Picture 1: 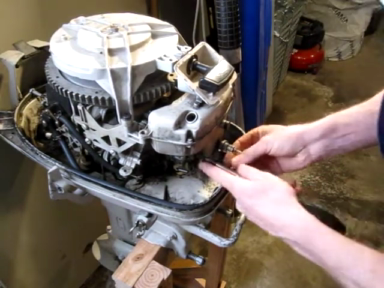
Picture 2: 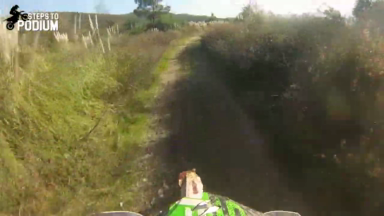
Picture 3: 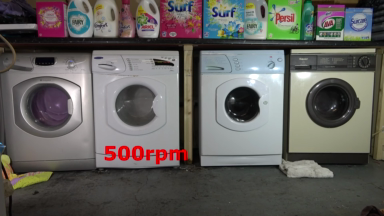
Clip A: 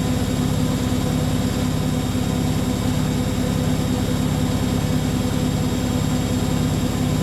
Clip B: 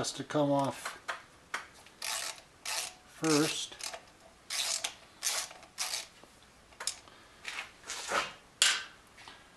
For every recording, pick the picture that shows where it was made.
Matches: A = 3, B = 1